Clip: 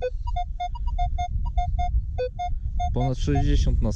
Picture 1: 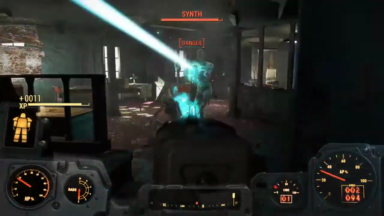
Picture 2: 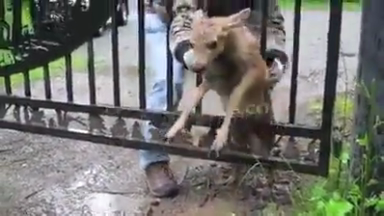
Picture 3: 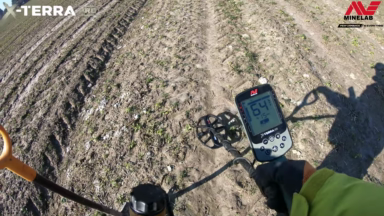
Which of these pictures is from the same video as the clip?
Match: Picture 3